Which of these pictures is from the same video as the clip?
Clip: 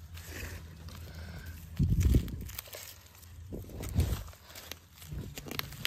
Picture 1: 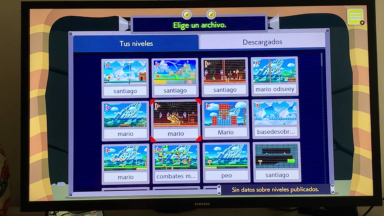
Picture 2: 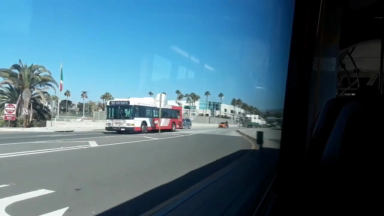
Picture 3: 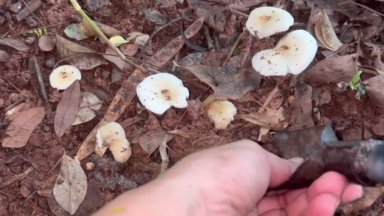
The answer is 3